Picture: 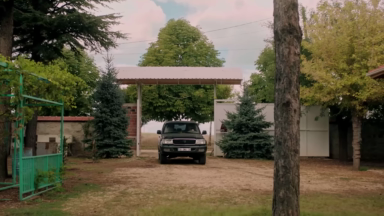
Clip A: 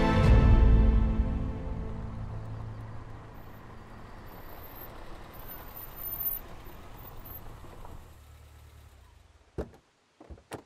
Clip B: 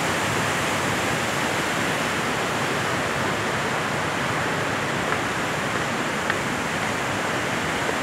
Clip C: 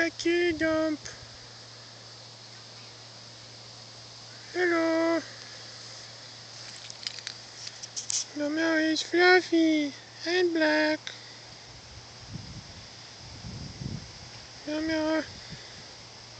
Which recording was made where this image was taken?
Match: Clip A